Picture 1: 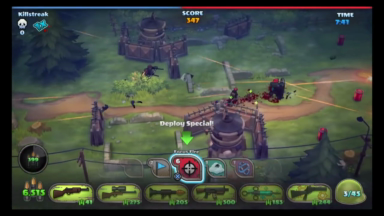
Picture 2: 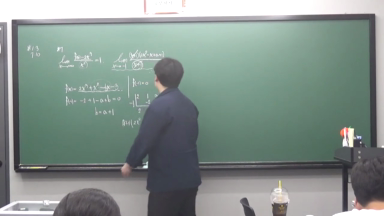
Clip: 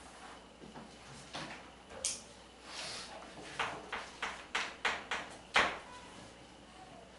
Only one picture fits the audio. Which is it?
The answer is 2